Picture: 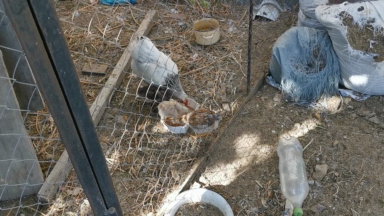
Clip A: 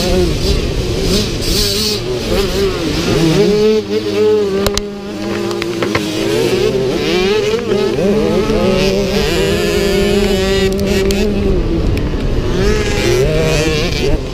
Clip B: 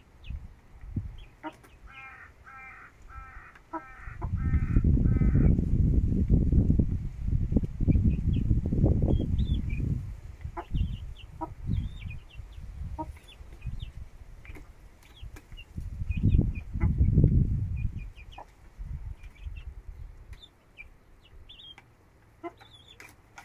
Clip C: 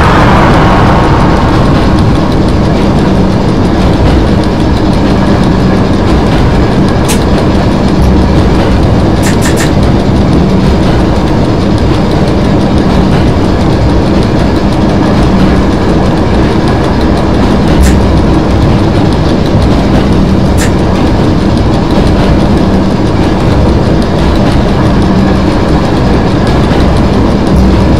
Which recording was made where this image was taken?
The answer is B